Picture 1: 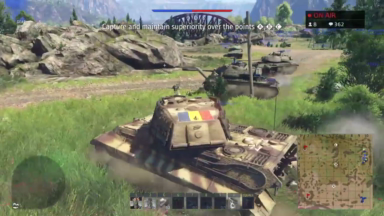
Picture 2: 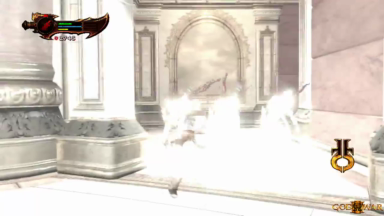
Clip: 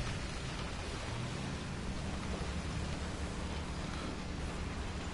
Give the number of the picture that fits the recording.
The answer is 1